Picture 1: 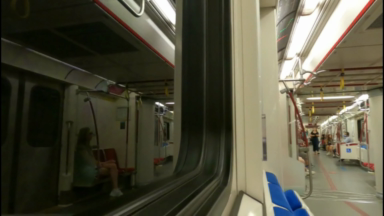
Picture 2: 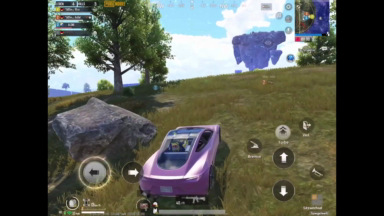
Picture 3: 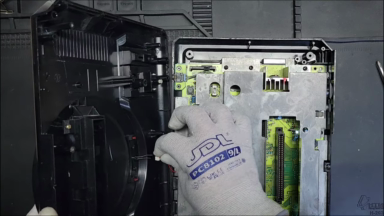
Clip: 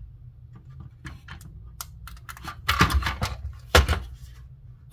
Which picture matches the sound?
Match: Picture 3